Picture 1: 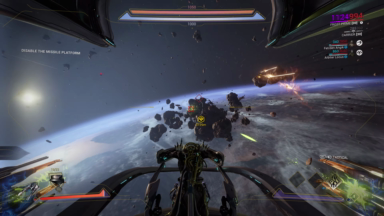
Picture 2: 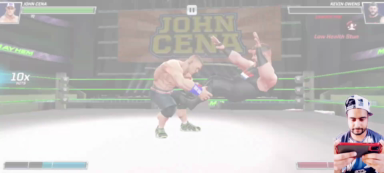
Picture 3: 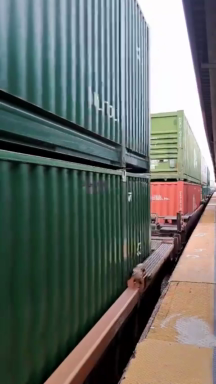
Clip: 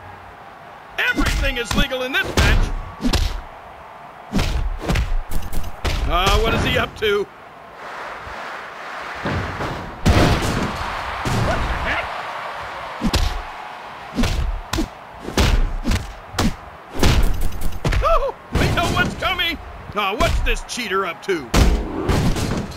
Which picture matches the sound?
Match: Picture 2